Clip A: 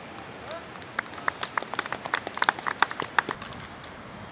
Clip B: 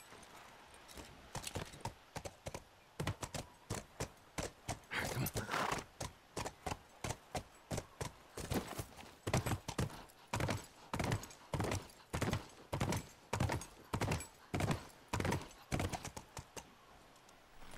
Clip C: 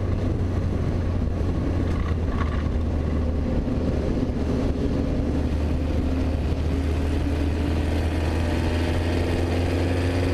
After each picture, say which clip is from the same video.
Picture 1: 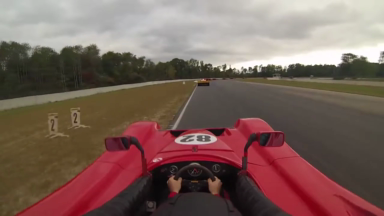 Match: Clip C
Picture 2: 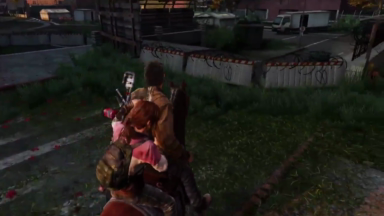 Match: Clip B